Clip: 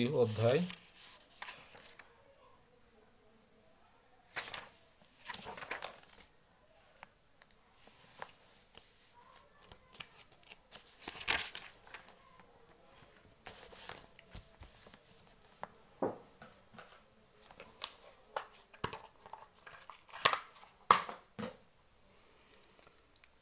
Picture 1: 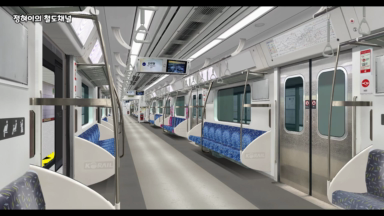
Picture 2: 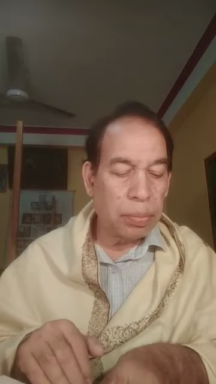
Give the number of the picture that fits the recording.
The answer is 2